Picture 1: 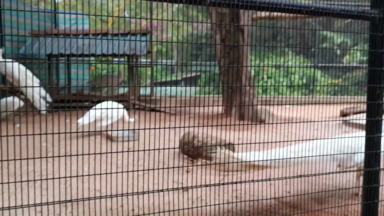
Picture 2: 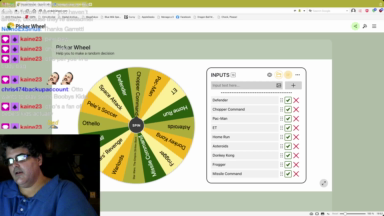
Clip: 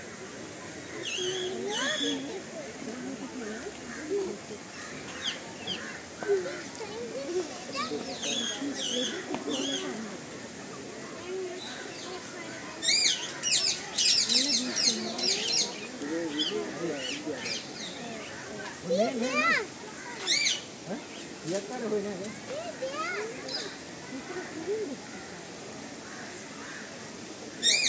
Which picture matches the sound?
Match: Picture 1